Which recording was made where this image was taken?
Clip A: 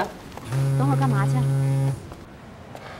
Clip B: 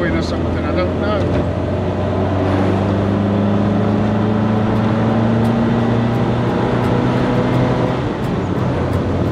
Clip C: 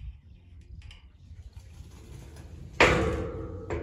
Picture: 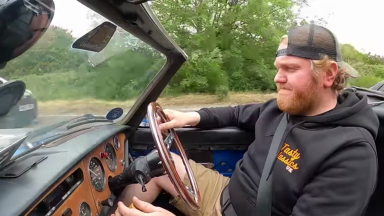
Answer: B